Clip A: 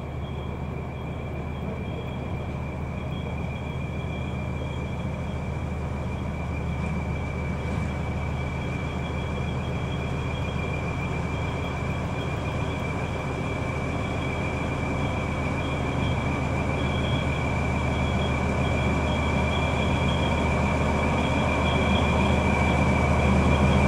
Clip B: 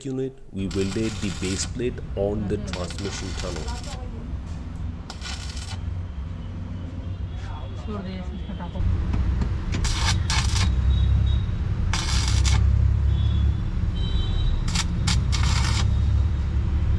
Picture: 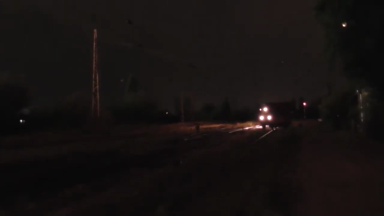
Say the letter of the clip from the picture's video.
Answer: A